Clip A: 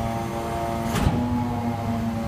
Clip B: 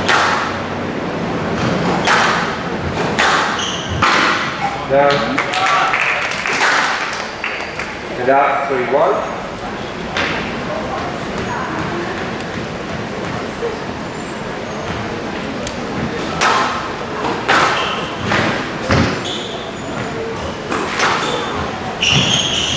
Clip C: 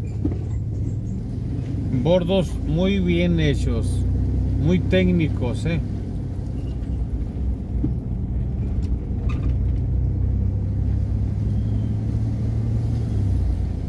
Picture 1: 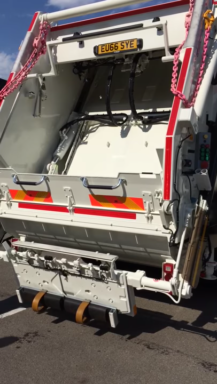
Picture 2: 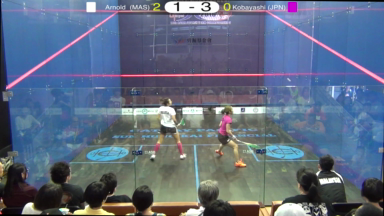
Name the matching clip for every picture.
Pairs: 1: A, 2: B